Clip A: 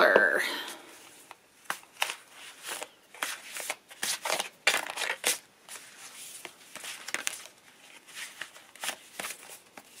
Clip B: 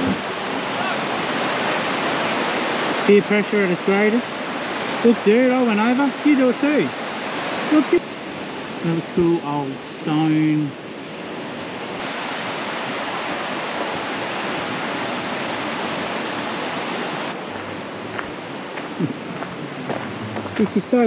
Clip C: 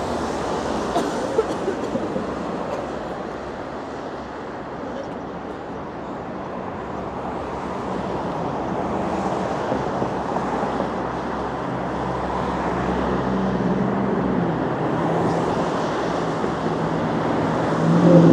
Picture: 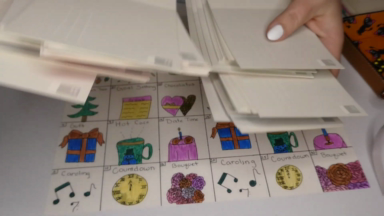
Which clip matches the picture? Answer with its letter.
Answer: A